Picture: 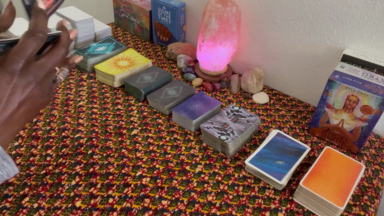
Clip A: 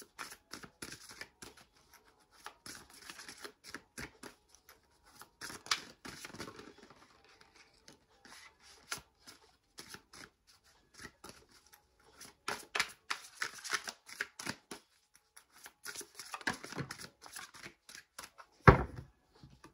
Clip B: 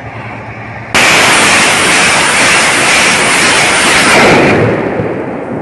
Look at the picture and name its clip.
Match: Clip A